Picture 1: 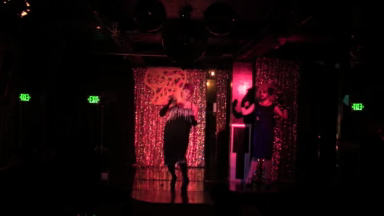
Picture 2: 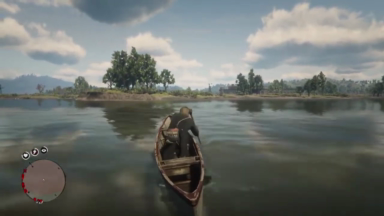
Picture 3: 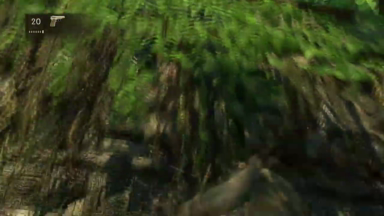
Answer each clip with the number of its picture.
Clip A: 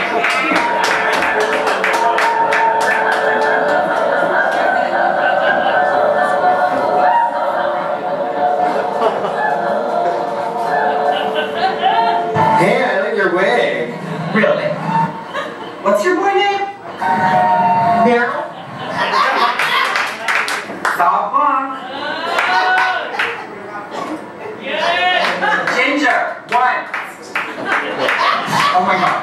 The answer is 1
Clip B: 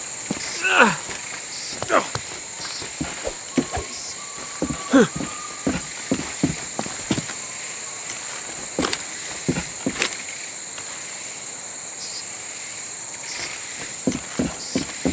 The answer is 3